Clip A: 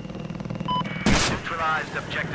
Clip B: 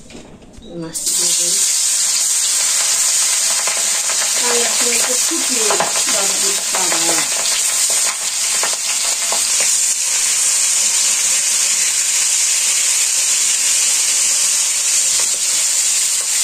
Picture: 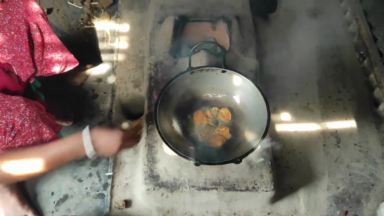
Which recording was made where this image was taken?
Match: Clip B